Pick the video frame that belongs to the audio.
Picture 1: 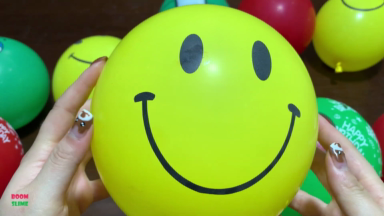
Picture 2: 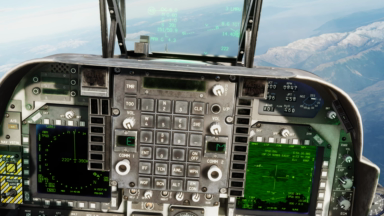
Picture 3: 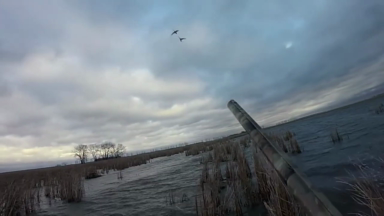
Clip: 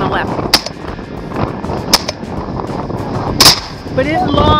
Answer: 3